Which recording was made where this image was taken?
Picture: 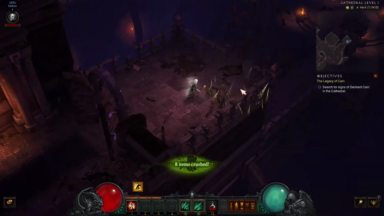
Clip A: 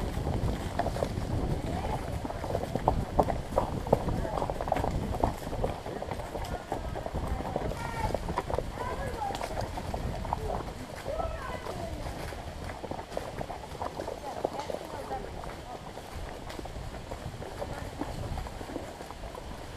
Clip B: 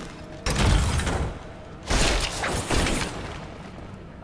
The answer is B